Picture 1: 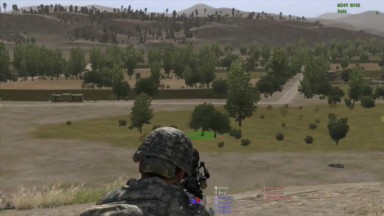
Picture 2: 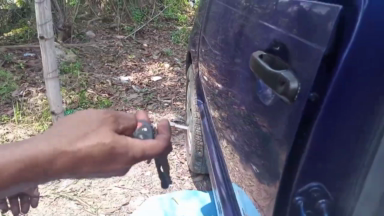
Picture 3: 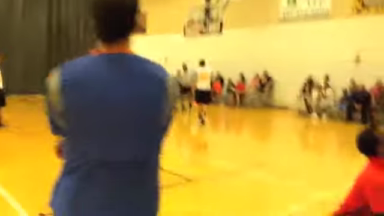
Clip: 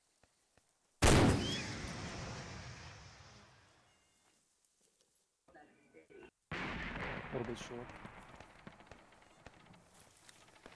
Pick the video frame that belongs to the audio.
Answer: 1